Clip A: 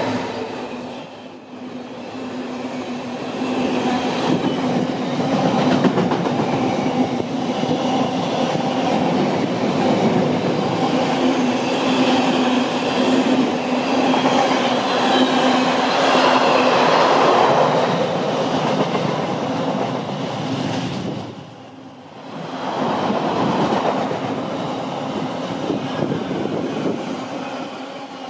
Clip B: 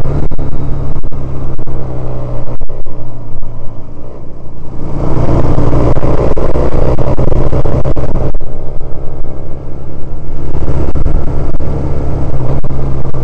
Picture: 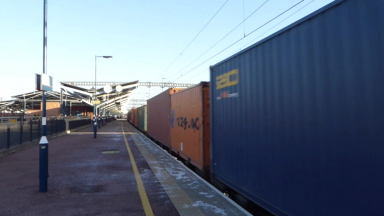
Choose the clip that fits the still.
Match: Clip A